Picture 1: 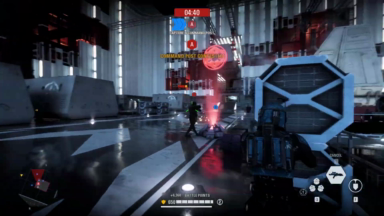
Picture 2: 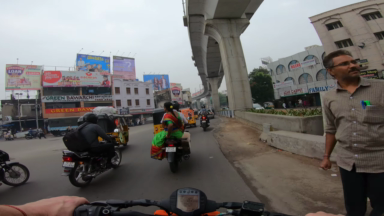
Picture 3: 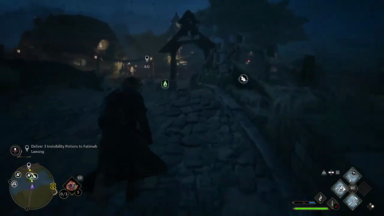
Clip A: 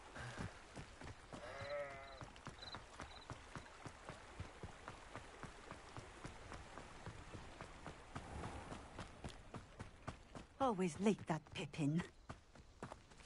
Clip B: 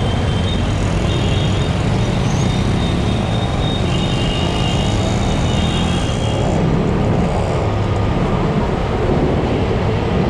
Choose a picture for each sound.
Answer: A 3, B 2